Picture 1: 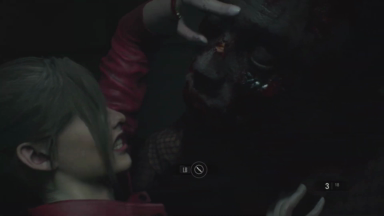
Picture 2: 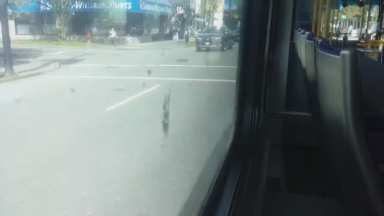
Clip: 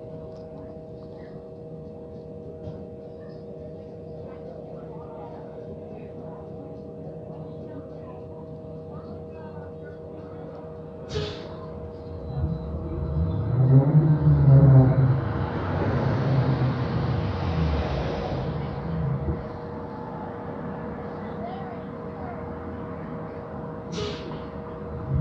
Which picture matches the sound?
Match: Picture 2